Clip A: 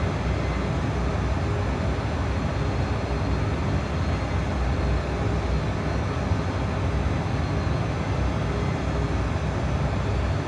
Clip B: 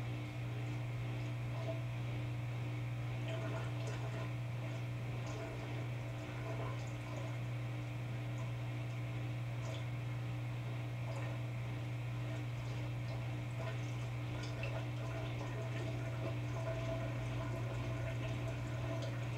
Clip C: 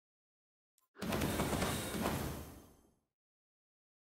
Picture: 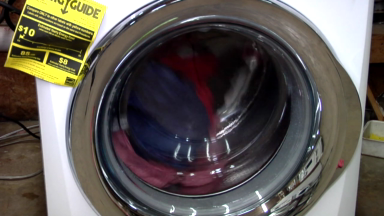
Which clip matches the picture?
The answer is B